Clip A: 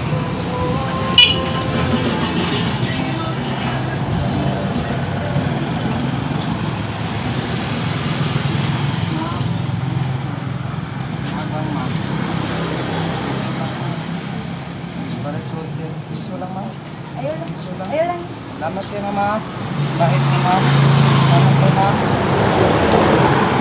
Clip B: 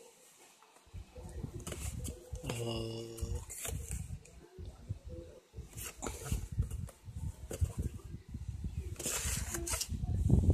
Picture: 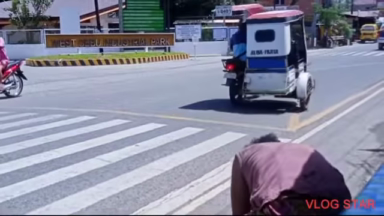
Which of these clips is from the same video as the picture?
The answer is A